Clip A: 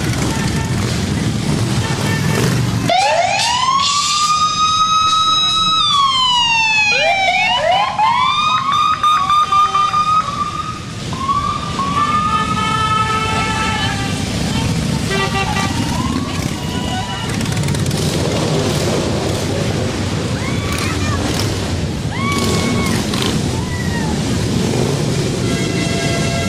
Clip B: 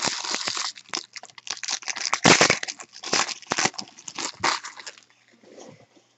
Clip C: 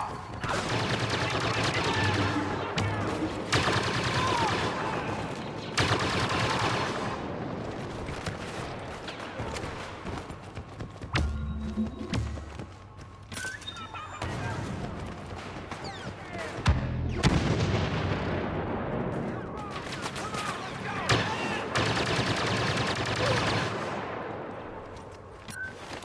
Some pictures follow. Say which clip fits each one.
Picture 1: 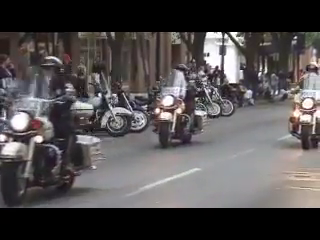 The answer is A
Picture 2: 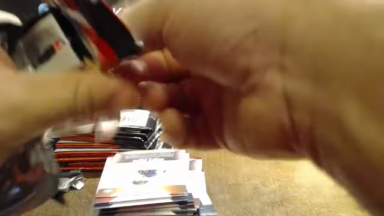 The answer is B